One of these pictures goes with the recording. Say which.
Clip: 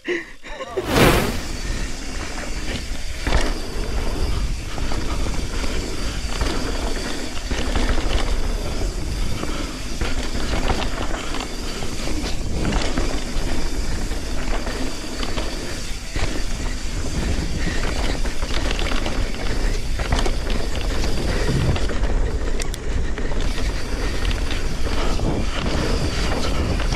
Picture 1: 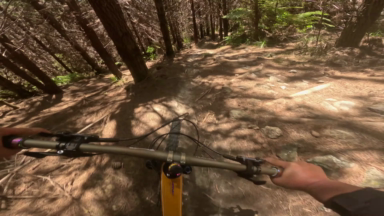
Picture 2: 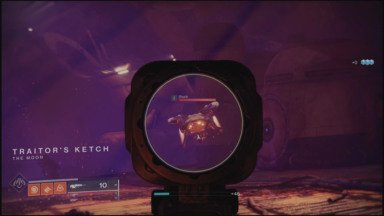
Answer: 1